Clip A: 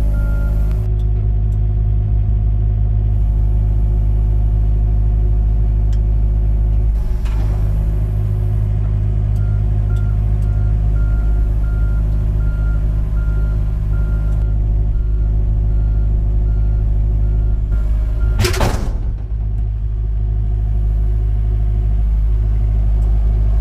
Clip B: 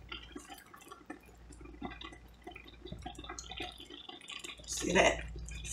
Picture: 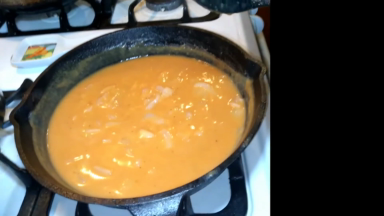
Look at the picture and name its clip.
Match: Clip B